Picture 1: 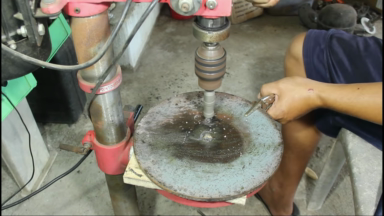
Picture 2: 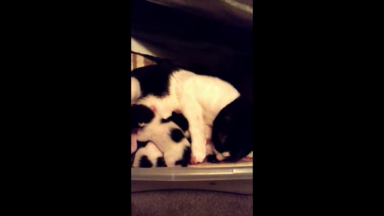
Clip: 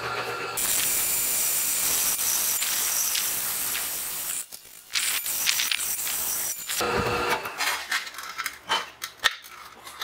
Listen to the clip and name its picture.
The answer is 1